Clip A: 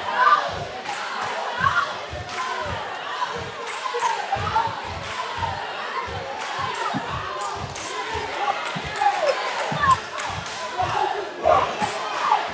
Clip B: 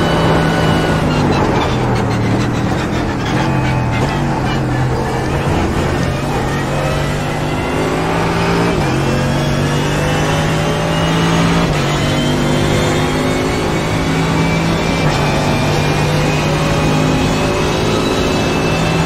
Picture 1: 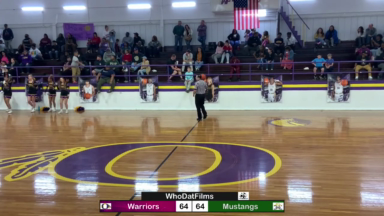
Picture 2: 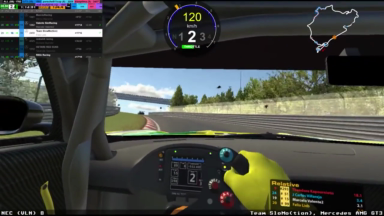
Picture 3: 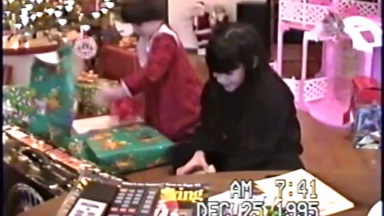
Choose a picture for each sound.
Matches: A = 1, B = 2